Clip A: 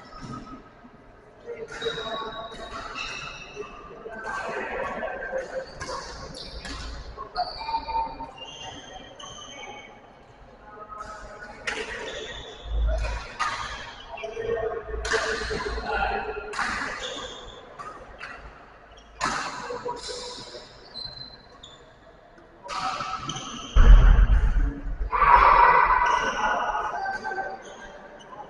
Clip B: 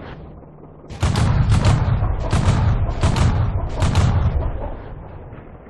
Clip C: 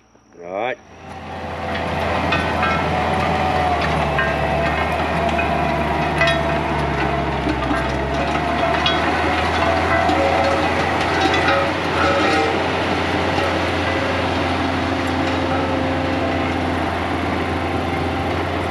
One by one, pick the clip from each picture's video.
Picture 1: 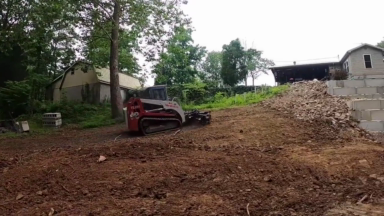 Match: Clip C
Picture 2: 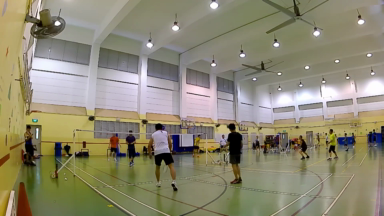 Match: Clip A